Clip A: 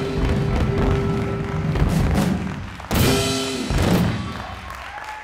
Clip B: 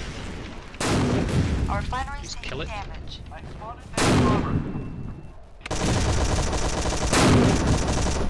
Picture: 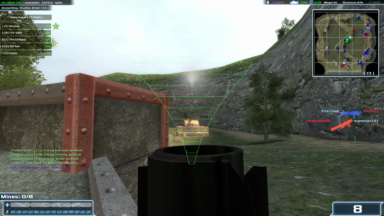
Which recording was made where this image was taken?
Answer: B